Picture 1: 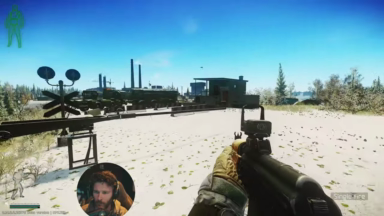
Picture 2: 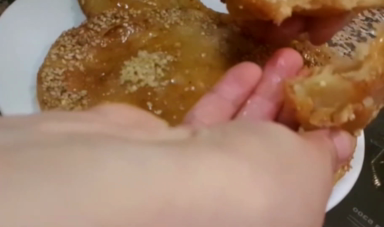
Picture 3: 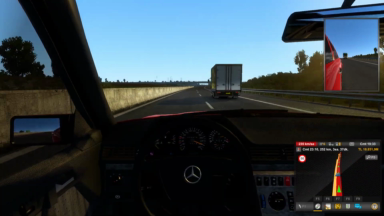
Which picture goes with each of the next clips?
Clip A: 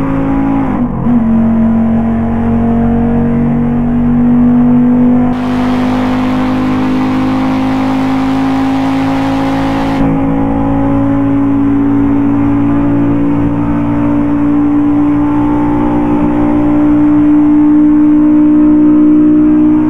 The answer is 3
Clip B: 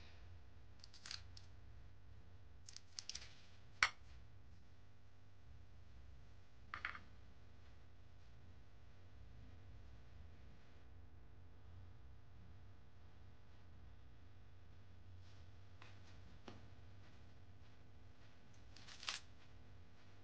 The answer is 2